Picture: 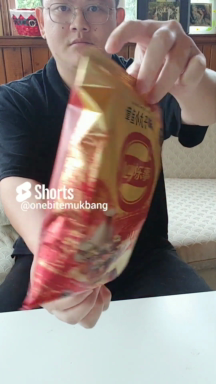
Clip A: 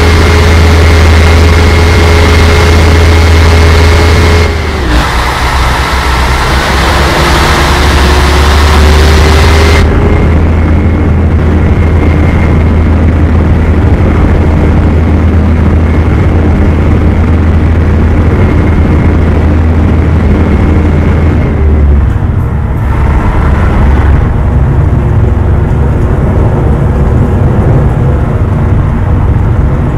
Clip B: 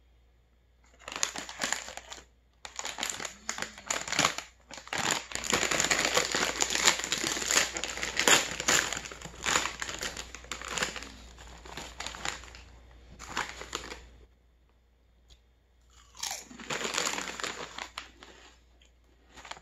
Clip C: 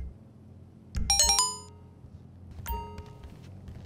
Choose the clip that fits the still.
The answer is B